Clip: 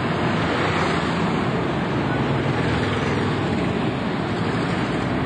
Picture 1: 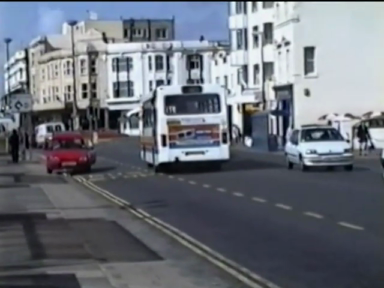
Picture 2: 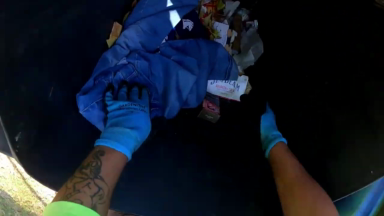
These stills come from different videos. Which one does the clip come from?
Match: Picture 1